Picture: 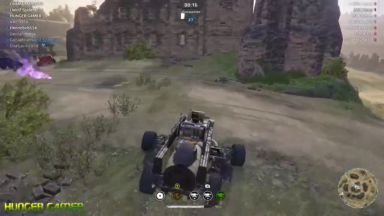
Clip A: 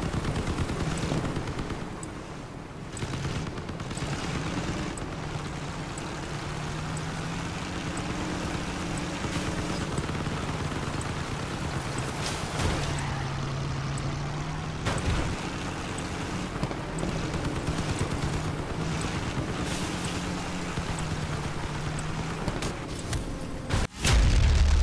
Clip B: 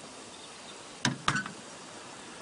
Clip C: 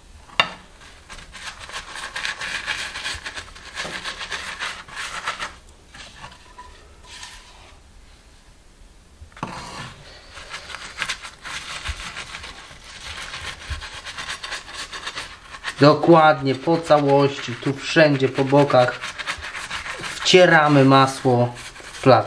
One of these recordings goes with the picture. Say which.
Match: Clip A